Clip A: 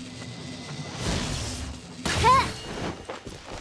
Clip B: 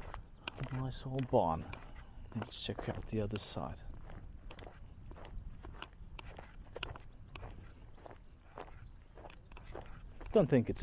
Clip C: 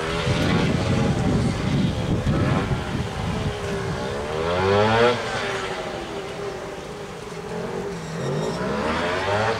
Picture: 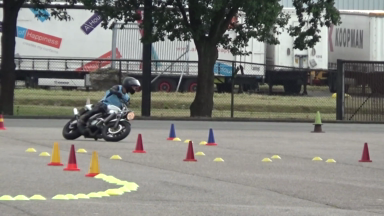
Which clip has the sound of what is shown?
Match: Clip C